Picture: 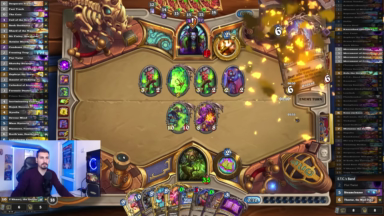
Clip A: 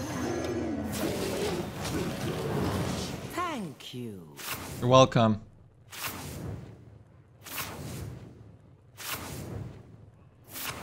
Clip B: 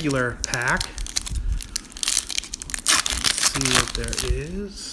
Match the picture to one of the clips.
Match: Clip A